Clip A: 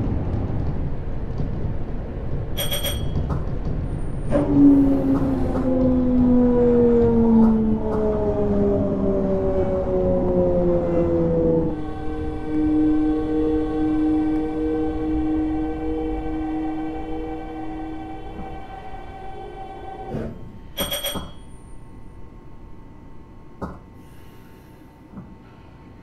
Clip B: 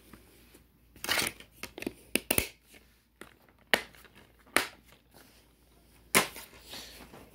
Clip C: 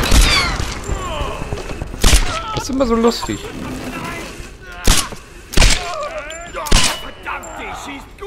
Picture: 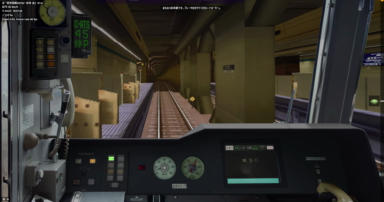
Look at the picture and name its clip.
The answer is A